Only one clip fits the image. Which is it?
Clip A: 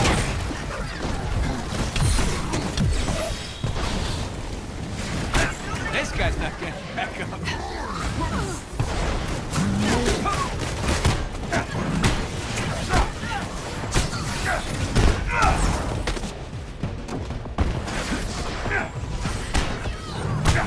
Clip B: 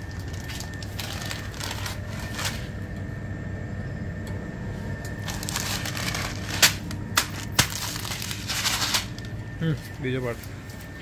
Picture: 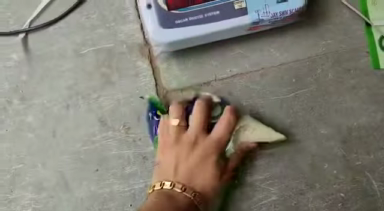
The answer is B